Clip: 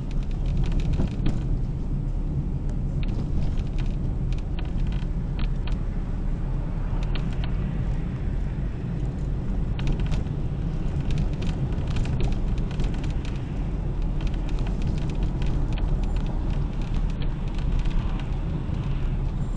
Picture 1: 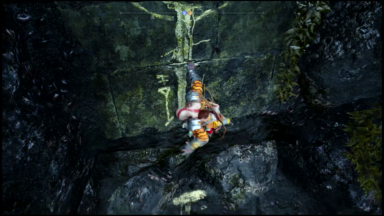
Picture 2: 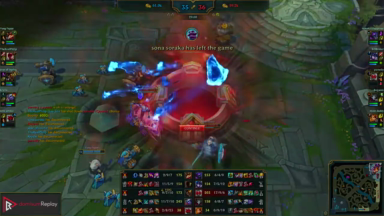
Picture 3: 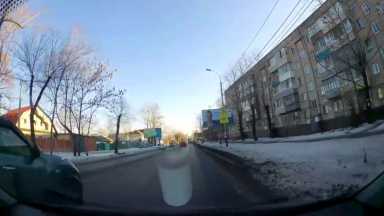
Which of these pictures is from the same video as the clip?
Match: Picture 3